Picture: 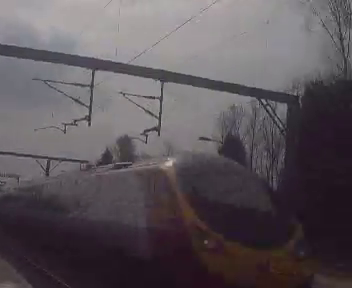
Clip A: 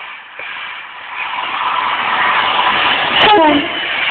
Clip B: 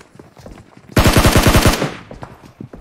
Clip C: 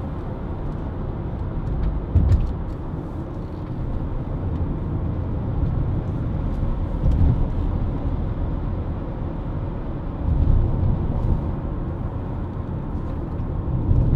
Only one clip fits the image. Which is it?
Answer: A